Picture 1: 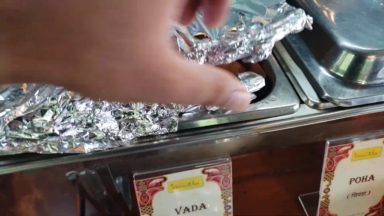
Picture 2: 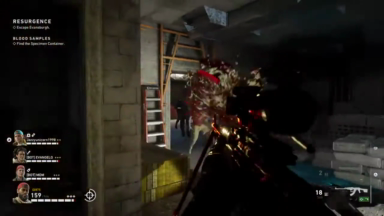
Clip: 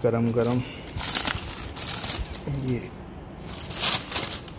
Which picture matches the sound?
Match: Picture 1